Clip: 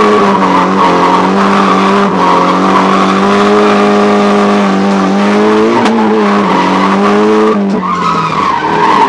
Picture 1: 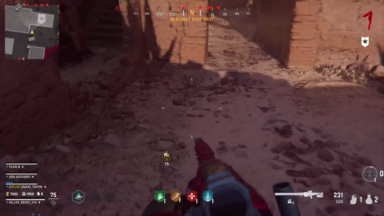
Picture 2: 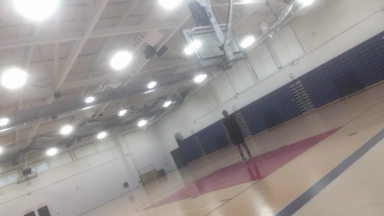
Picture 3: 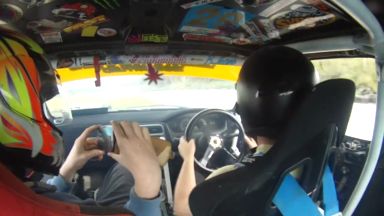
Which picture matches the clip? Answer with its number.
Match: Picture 3